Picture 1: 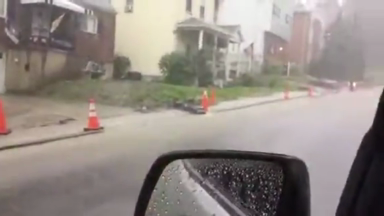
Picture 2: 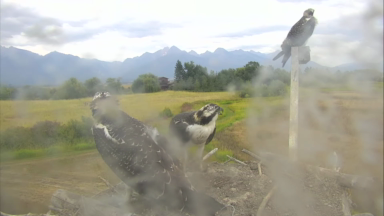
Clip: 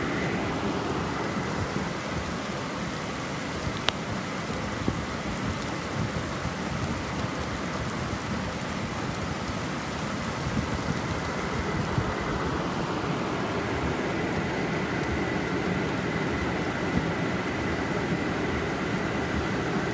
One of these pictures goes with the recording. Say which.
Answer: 1